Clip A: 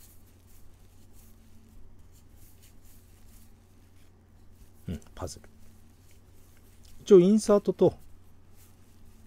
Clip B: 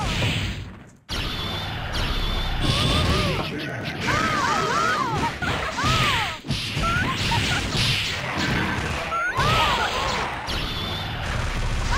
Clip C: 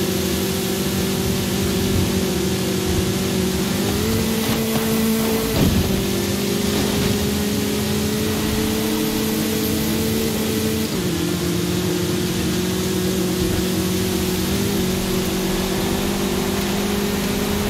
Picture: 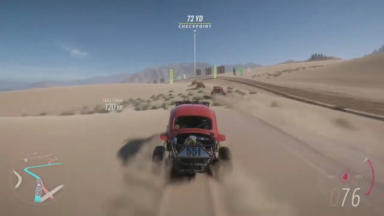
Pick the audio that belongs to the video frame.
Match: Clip C